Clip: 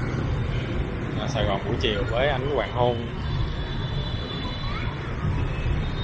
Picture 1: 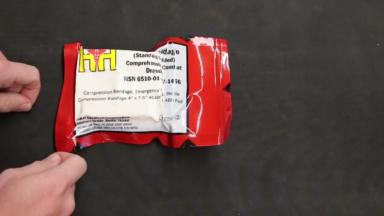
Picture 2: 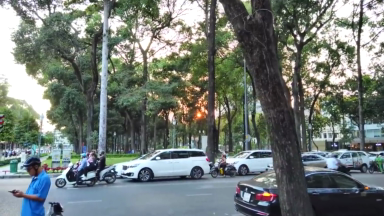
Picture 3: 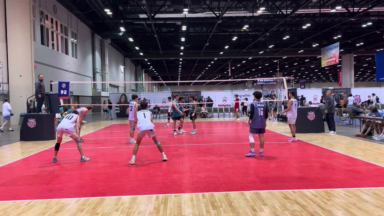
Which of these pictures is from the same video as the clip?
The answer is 2